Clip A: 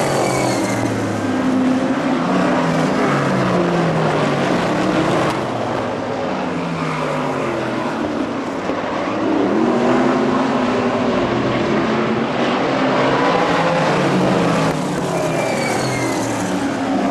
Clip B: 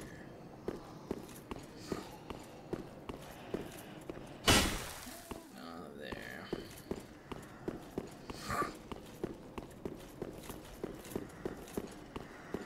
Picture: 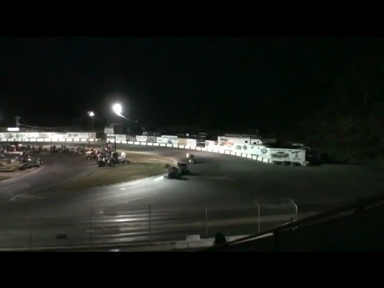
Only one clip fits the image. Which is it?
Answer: A